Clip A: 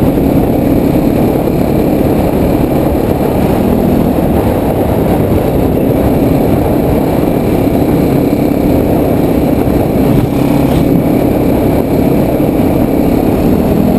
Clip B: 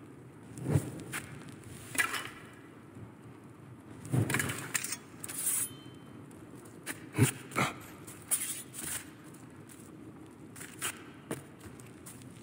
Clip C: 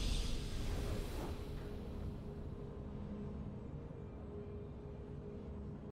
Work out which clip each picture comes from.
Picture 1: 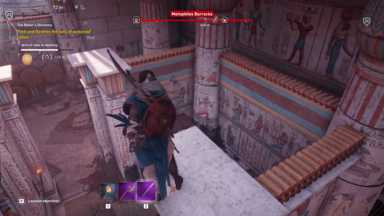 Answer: B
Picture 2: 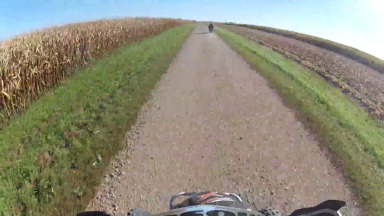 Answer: A